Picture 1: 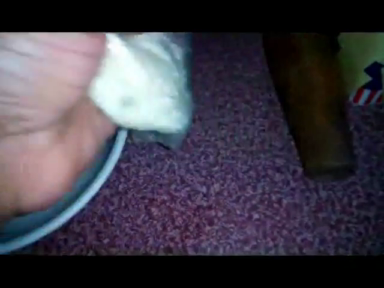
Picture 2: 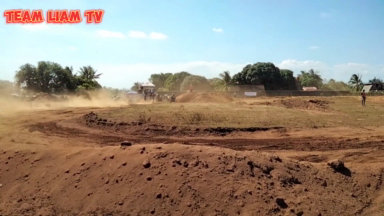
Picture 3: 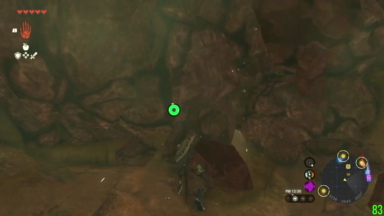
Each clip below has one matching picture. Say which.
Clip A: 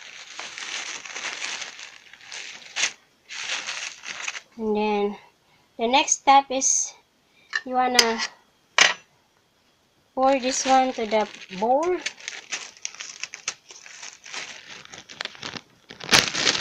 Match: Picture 1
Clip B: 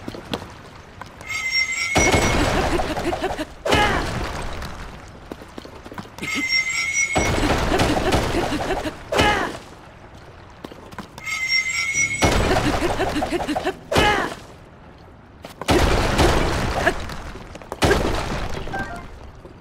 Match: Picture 3